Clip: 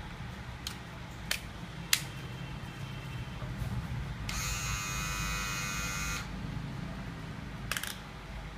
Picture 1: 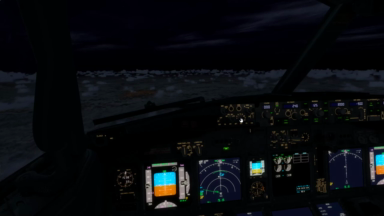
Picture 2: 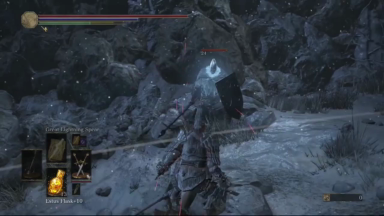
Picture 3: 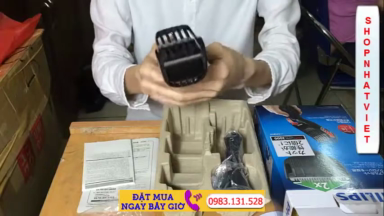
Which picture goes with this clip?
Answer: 3